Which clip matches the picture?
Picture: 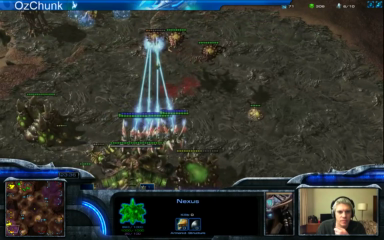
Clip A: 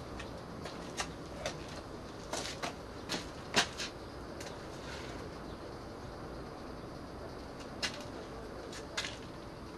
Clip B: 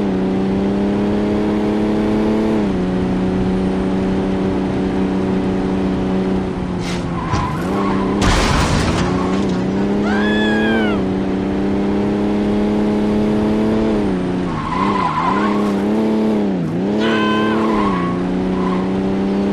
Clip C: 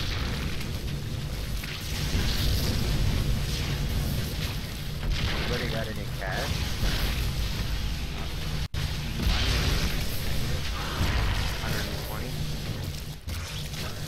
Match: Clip C